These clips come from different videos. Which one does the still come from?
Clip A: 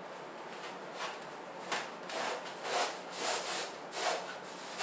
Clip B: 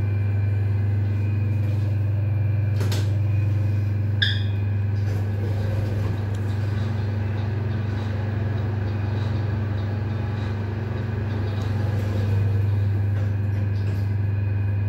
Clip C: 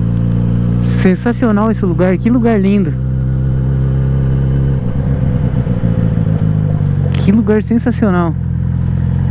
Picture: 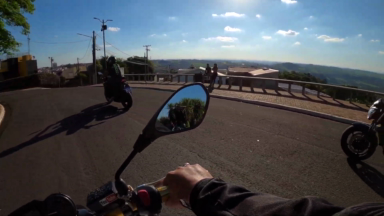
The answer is C